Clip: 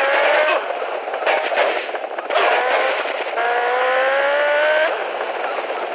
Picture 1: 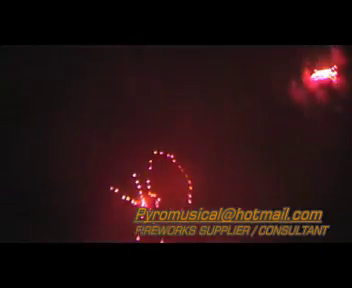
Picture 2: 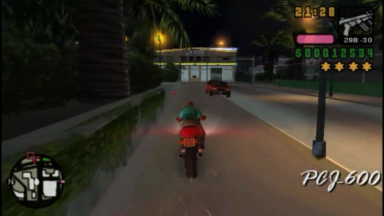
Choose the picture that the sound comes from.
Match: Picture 2